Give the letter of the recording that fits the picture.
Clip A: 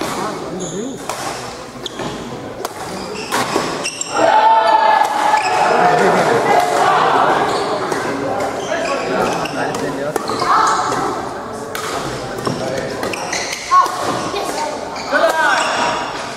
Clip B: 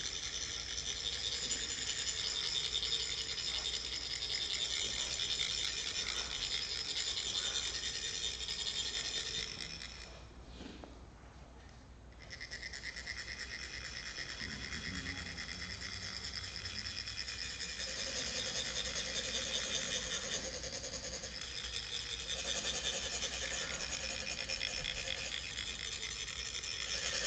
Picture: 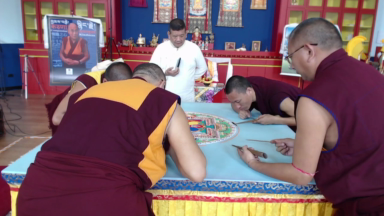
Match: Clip B